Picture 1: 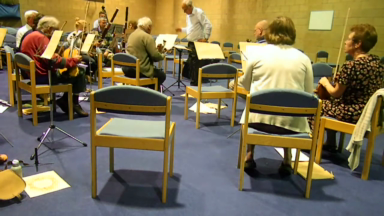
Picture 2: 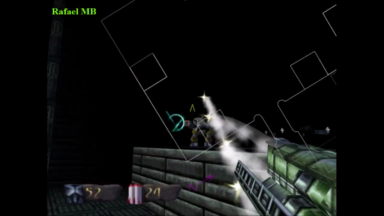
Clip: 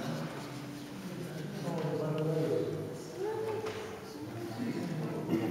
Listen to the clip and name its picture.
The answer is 1